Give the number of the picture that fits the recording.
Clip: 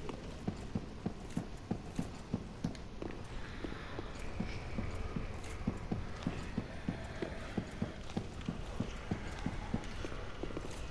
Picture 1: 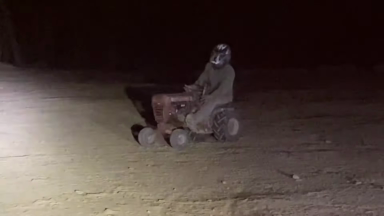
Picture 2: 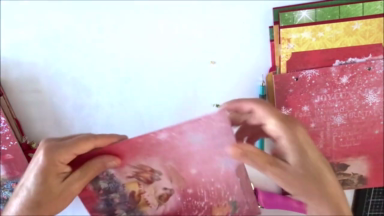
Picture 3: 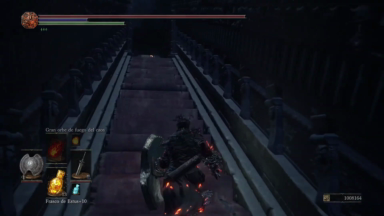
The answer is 3